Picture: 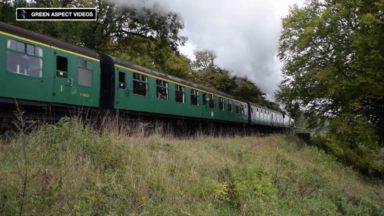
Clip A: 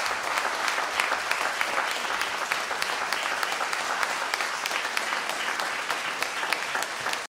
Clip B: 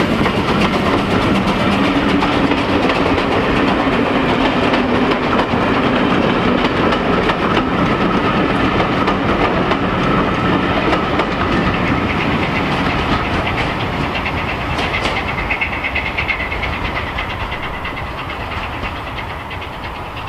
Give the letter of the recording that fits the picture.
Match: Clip B